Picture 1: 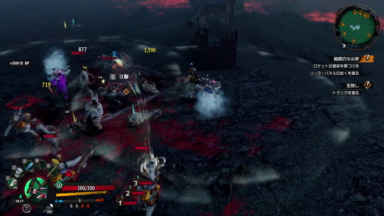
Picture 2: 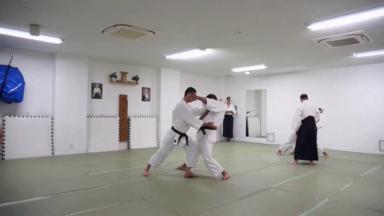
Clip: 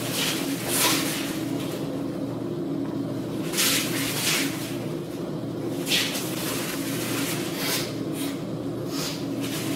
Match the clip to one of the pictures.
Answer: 2